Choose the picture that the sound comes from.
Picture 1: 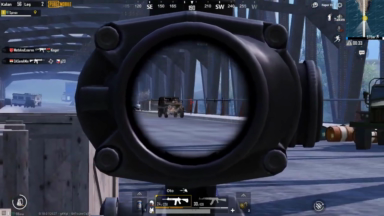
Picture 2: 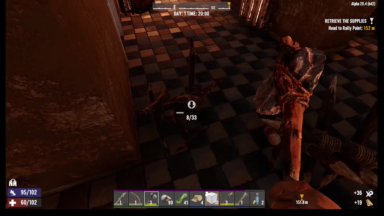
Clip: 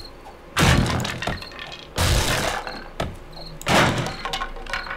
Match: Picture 2